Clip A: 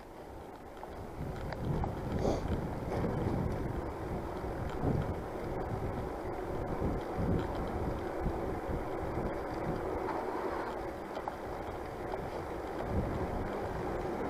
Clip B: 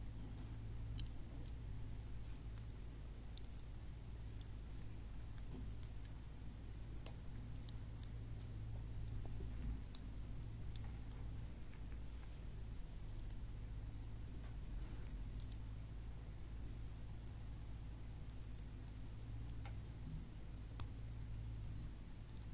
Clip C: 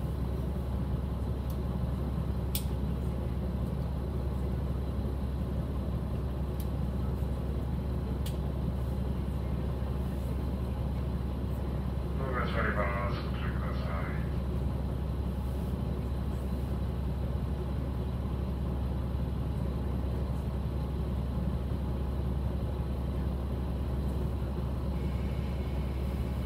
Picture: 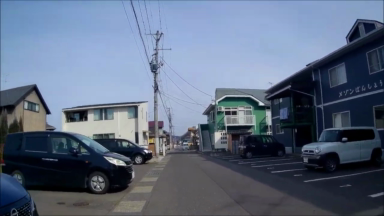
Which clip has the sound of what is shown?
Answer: A